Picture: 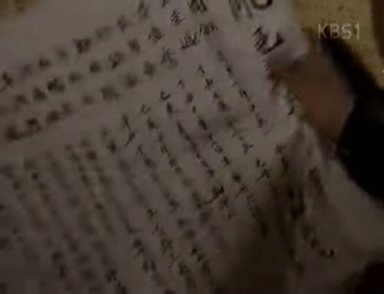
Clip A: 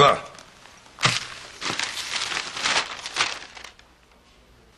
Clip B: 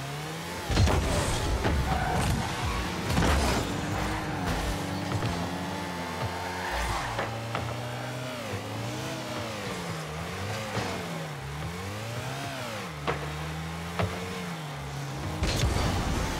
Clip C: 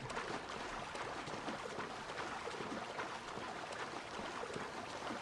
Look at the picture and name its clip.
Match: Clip A